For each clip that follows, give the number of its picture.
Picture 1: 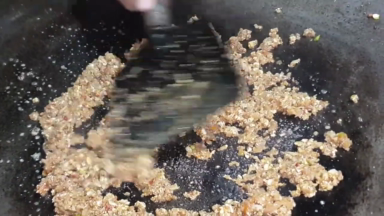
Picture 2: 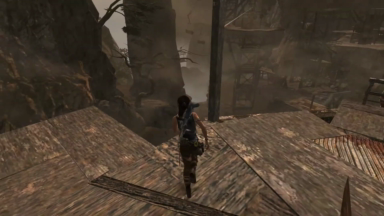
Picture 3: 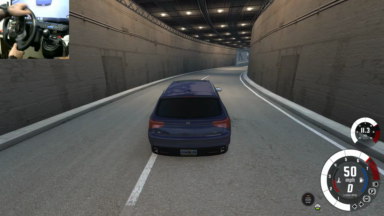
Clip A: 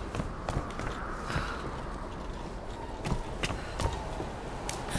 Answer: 2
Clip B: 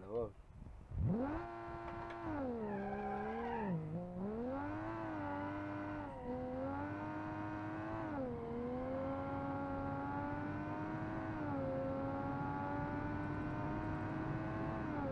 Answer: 3